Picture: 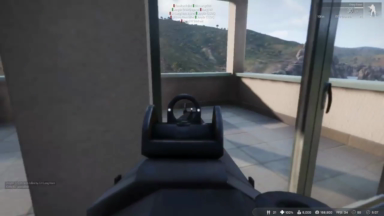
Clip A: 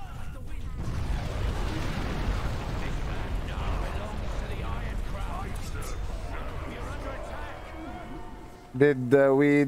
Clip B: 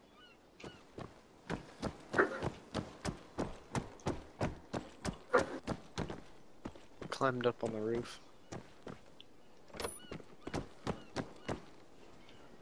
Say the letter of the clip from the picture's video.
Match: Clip B